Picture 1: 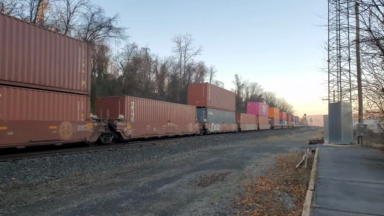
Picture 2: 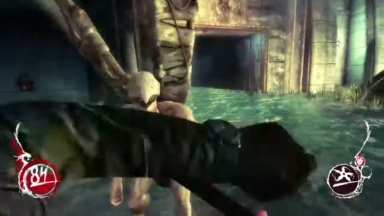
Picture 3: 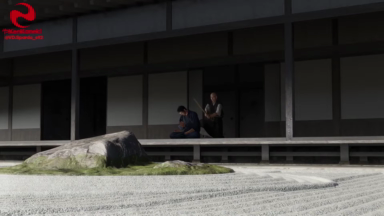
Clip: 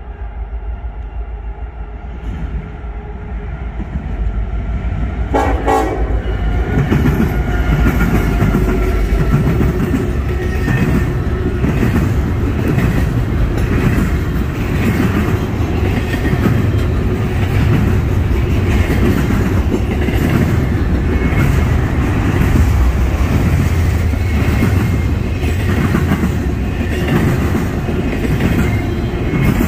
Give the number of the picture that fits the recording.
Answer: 1